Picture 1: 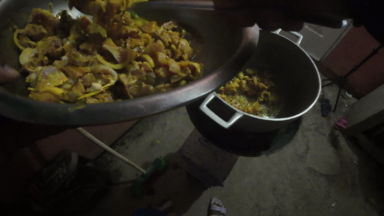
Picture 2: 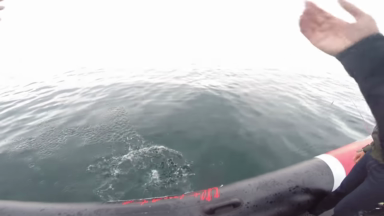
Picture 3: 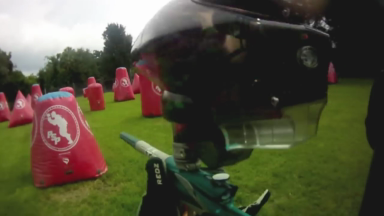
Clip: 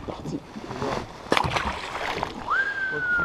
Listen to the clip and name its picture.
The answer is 2